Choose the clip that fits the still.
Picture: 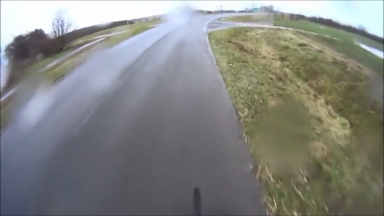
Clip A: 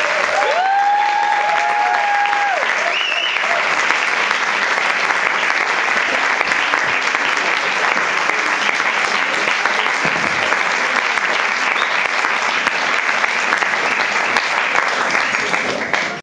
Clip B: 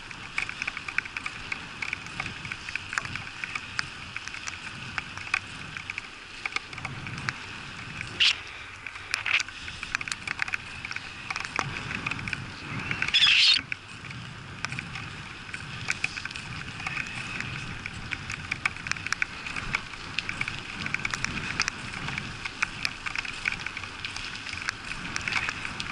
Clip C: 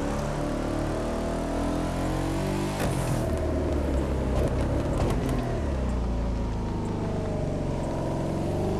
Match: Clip B